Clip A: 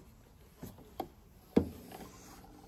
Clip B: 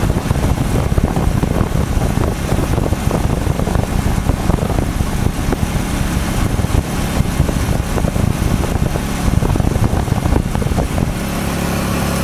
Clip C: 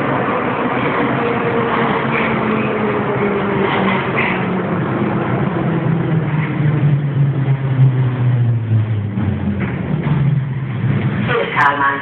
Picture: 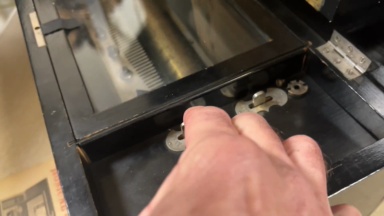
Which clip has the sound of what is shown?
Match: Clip A